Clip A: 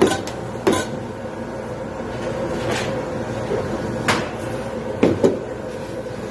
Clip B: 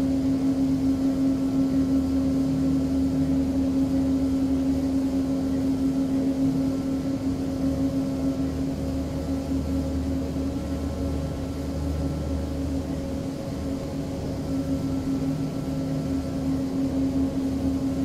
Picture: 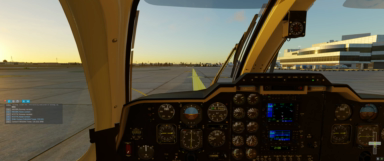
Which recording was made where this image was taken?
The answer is B